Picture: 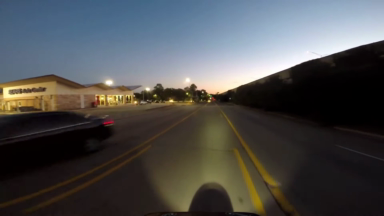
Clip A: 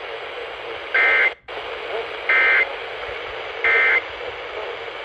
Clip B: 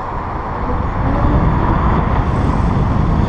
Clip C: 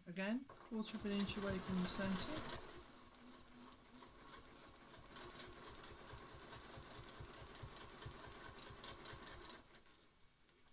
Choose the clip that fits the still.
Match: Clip B